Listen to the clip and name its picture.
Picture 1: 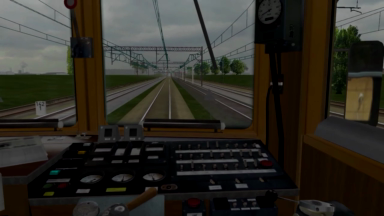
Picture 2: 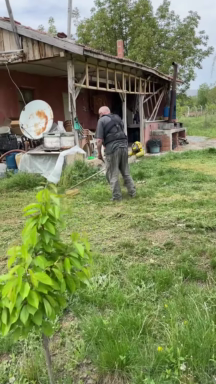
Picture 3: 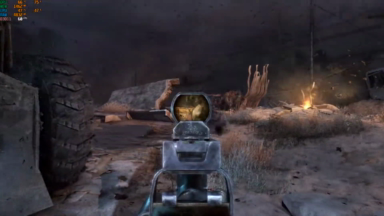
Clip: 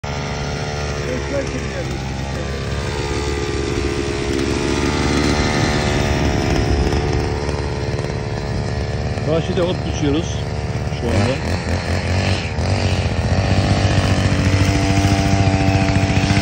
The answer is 2